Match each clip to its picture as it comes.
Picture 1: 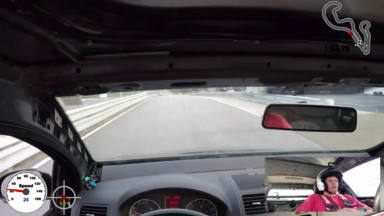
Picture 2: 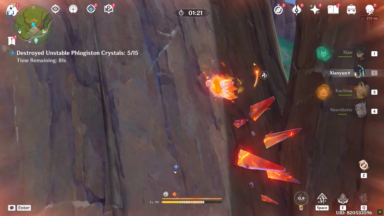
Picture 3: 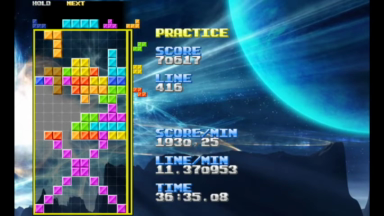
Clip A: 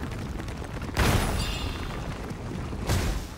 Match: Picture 2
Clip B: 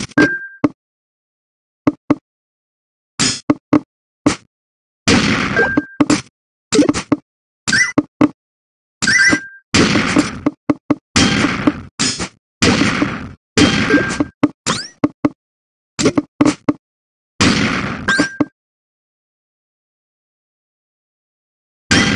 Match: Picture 3